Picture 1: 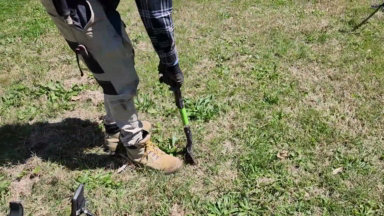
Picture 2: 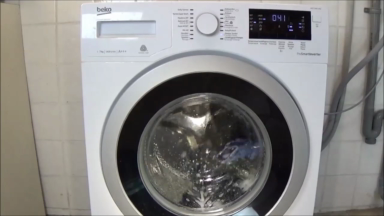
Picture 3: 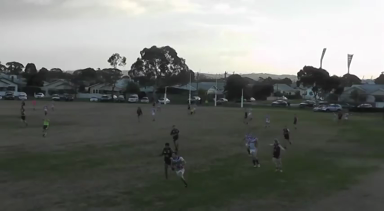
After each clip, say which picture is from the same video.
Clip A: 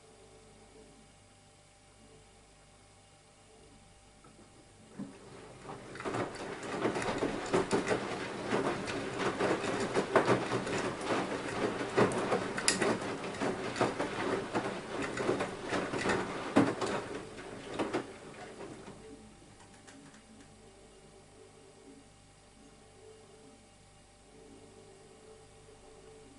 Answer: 2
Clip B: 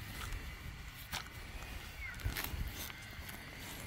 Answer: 1